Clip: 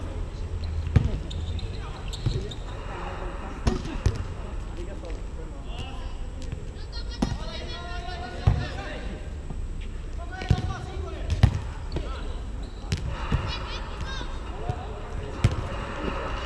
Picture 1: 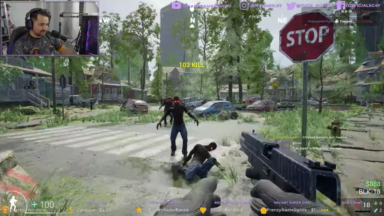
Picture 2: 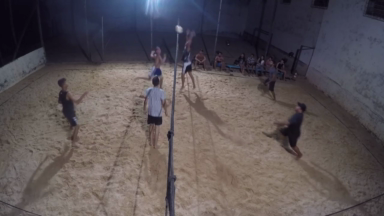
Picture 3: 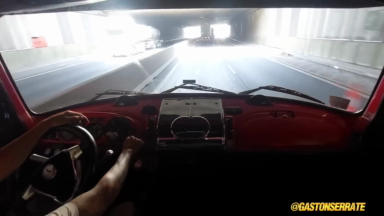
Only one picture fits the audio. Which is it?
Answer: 2